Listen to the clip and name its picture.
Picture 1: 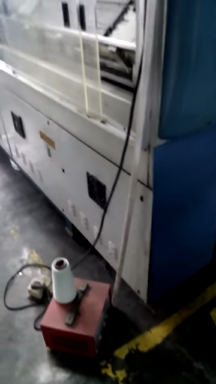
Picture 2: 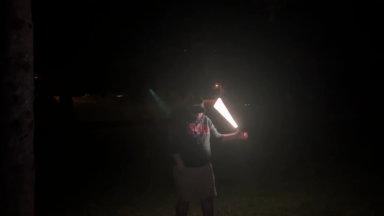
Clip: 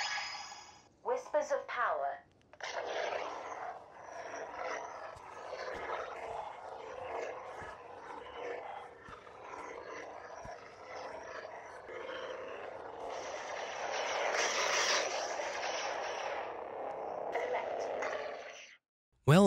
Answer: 2